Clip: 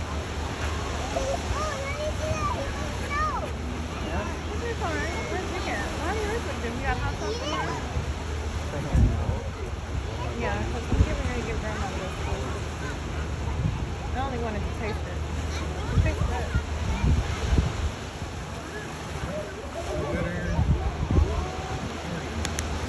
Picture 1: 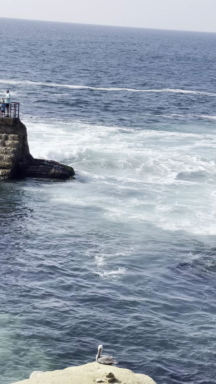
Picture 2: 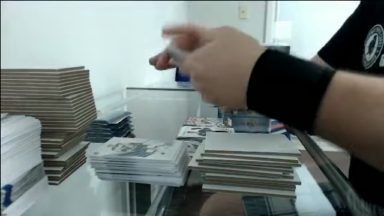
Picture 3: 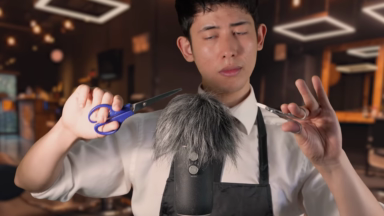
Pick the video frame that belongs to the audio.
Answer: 1